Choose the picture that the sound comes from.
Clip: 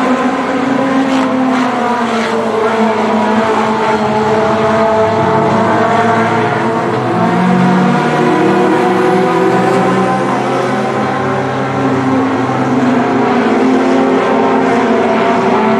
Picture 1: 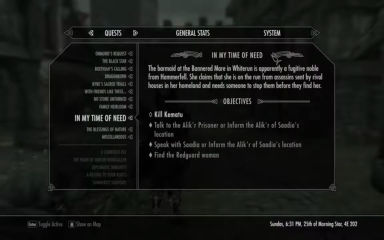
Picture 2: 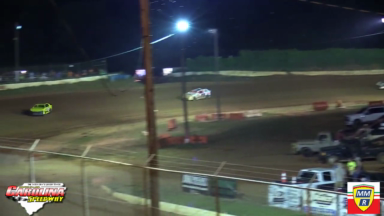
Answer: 2